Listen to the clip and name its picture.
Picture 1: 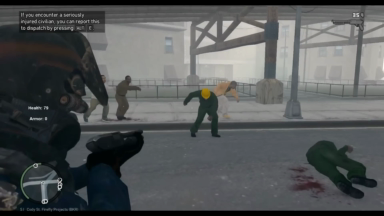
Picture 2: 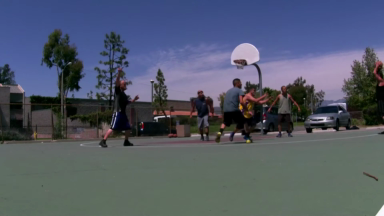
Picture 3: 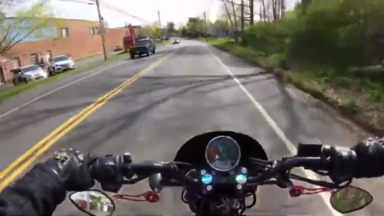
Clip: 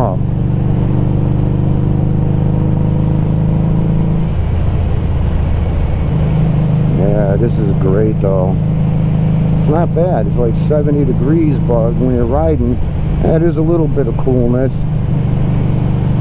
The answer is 3